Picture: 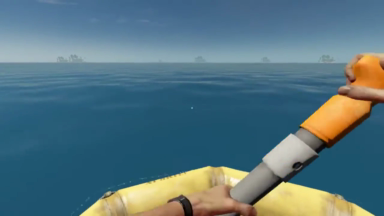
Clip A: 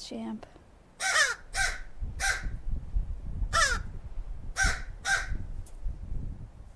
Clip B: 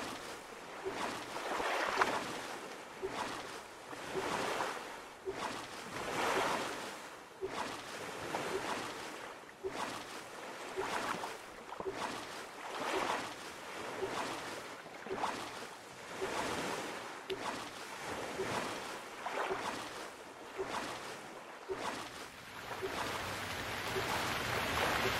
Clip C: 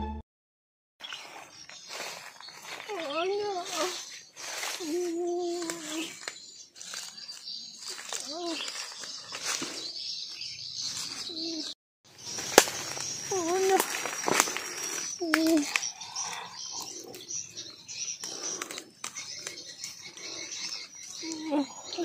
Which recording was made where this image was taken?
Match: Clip B